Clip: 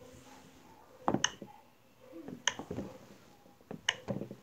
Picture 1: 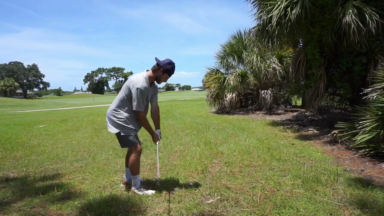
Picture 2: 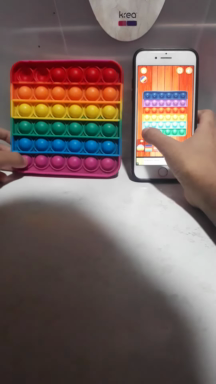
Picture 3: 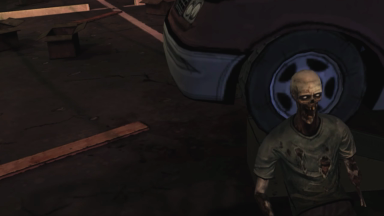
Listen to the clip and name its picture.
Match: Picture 2